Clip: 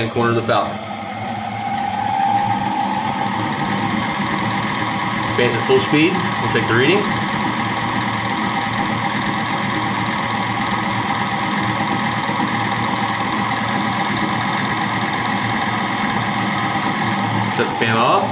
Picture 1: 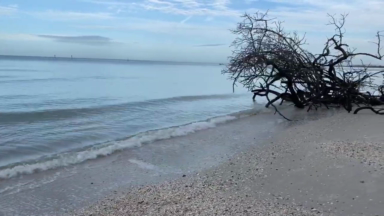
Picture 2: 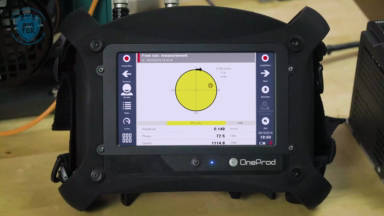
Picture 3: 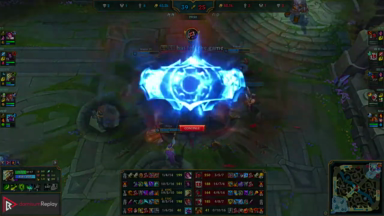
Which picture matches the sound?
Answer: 2